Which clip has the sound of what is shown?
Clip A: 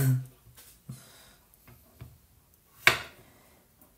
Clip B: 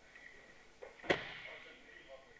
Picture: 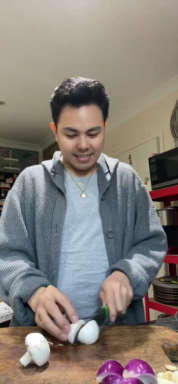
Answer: A